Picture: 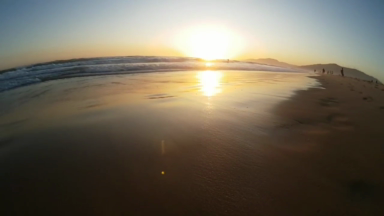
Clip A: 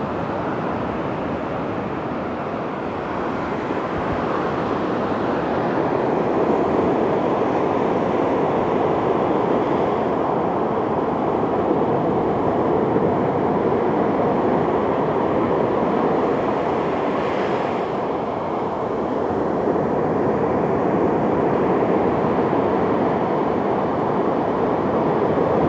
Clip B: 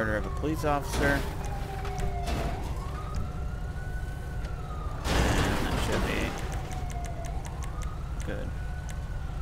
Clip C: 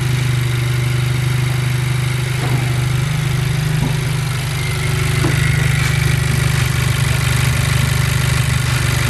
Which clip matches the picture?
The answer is A